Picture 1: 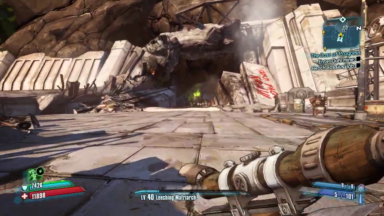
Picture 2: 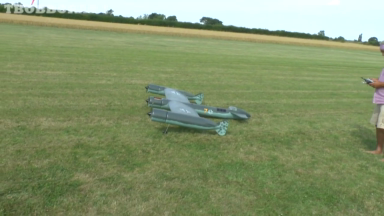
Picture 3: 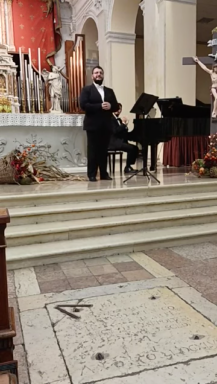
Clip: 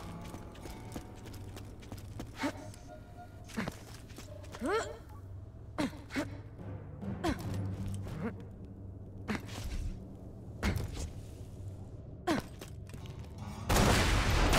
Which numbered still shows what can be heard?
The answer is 1